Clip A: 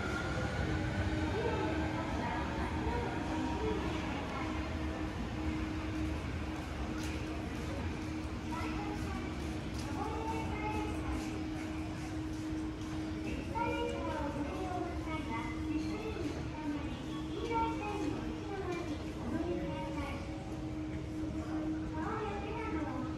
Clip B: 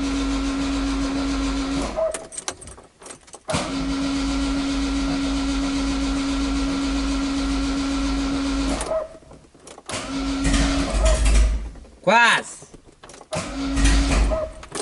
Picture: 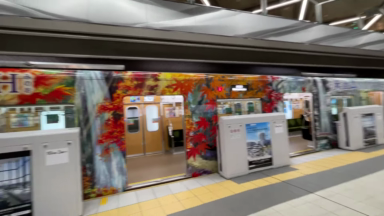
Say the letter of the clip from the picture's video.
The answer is A